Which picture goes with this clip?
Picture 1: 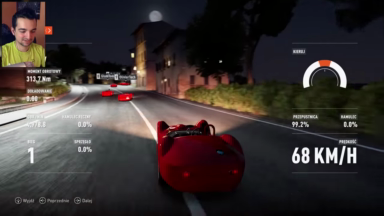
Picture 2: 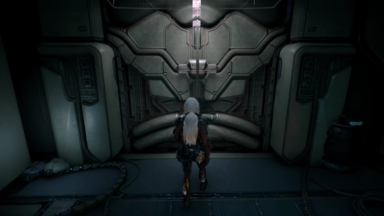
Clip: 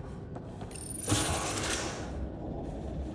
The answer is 2